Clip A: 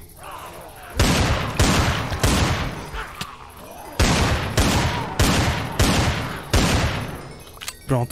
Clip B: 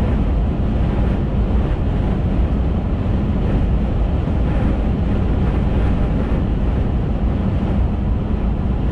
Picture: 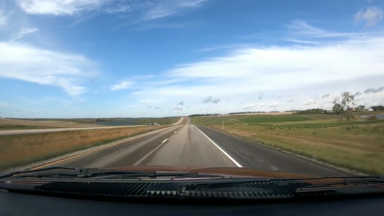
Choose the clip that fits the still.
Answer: B